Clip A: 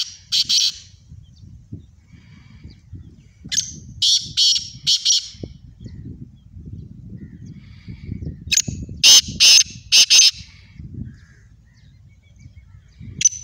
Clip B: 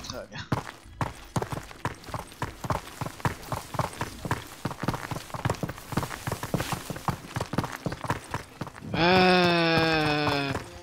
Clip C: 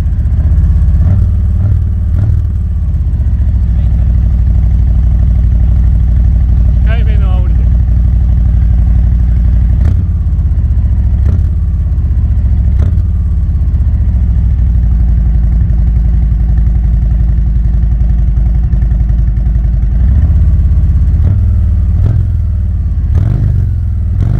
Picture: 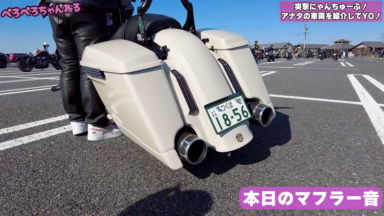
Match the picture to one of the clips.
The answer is C